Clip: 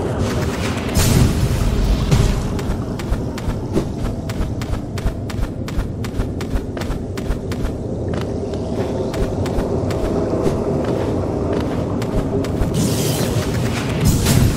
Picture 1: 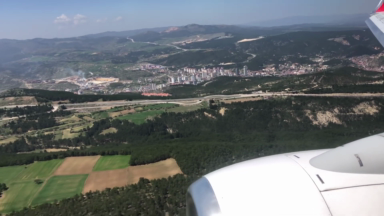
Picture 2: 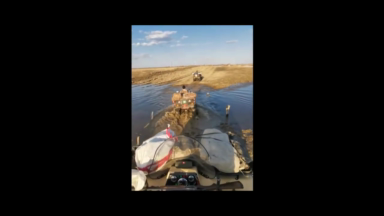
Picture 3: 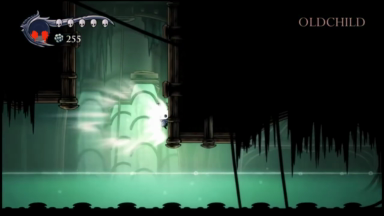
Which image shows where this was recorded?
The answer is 3